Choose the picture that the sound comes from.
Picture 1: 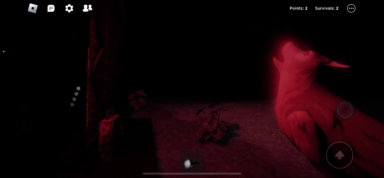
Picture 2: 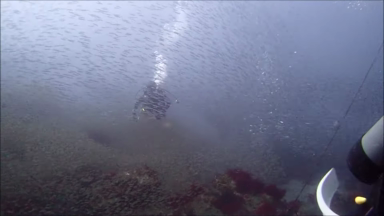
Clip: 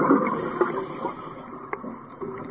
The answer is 2